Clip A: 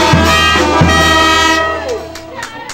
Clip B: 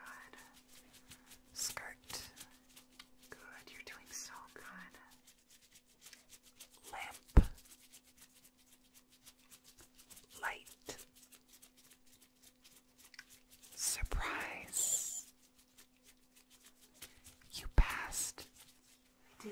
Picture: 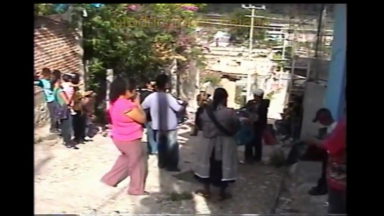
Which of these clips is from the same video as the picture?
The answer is A